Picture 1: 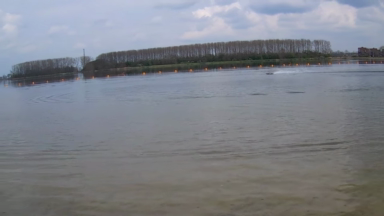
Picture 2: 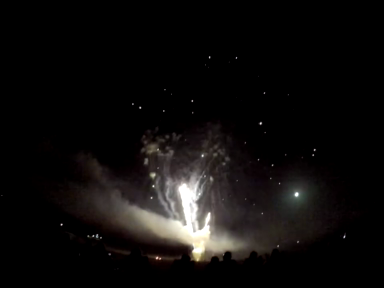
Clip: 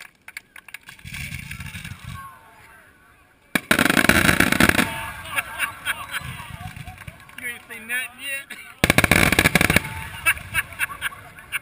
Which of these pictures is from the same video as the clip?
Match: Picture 2